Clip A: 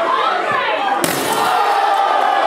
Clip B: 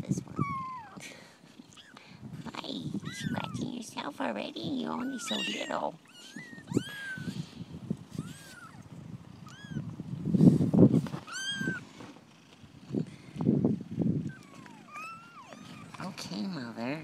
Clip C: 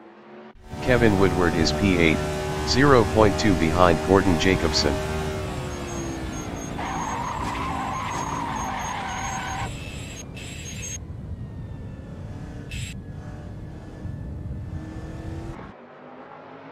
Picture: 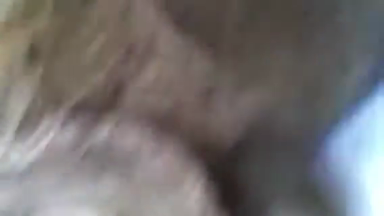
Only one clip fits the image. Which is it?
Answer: B